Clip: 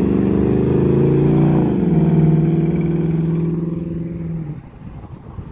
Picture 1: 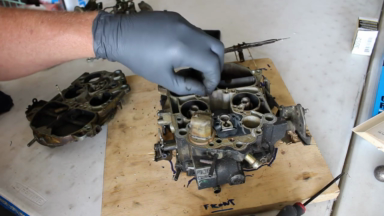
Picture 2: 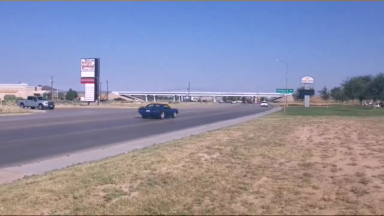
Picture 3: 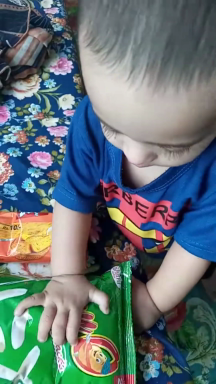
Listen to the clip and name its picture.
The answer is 2